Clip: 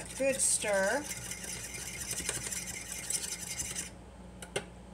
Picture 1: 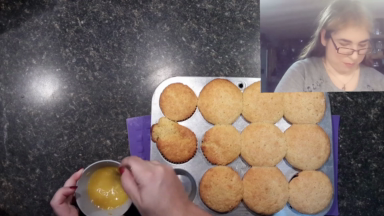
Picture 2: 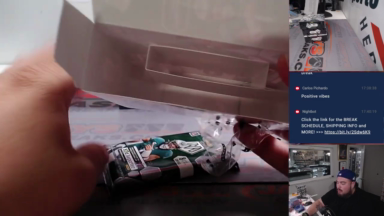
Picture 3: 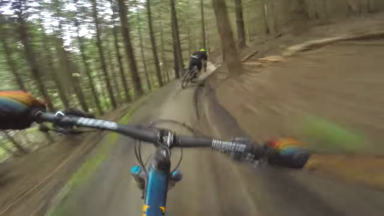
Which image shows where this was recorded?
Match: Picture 1